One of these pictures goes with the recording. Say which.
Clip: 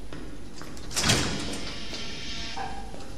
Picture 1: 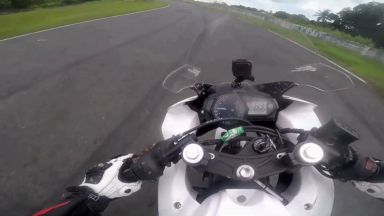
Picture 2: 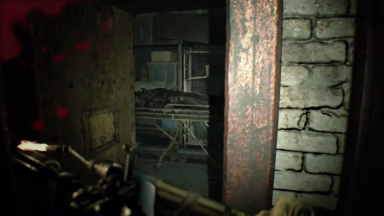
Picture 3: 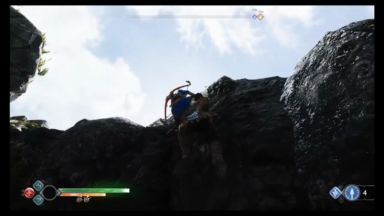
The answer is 2